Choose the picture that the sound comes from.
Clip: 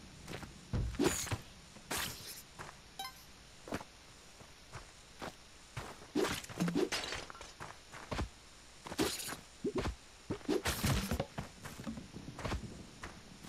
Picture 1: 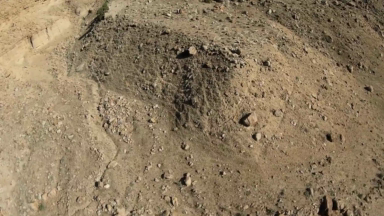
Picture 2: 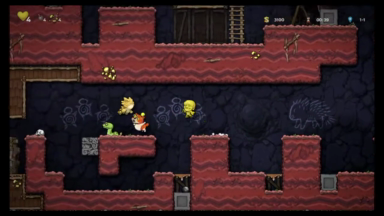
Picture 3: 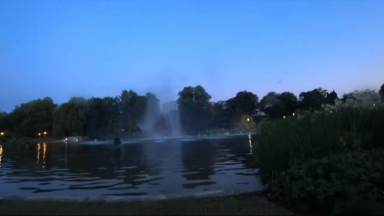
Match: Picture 2